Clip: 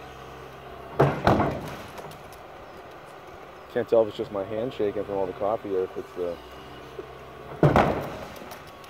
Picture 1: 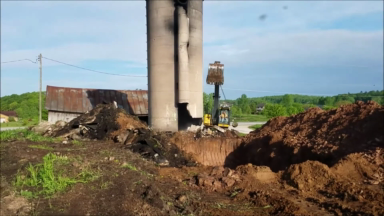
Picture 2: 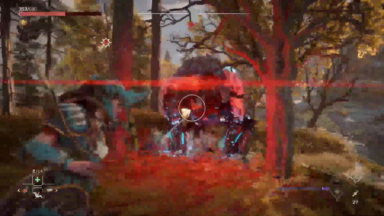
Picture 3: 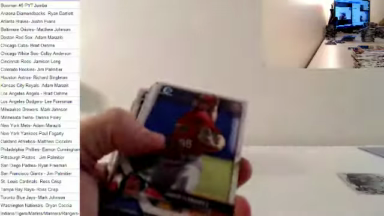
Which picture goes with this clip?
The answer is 1